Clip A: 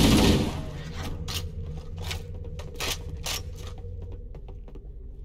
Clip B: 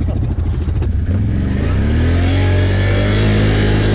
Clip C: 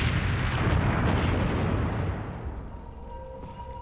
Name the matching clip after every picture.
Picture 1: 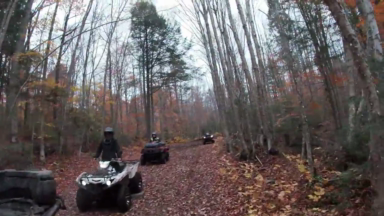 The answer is B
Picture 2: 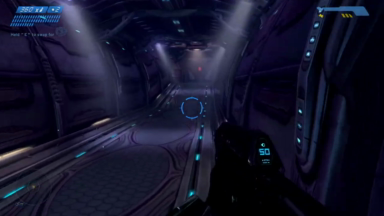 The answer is A